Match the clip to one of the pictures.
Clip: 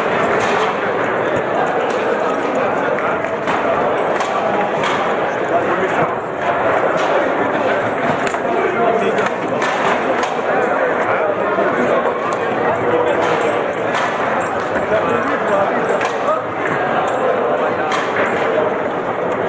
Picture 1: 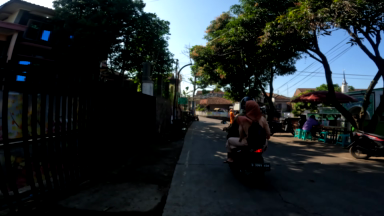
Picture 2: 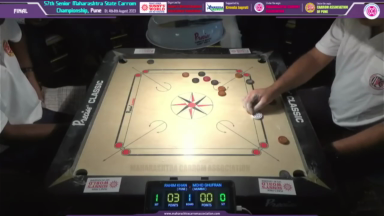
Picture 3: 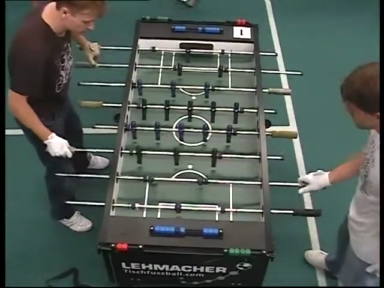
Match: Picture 3